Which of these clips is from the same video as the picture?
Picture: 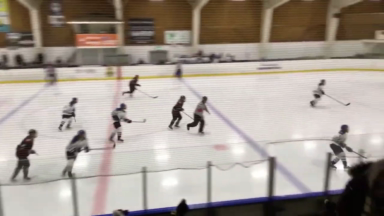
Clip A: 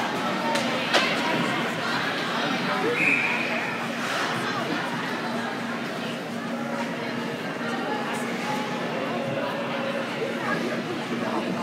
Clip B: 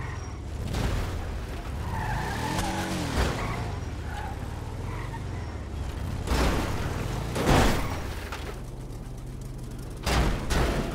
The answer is A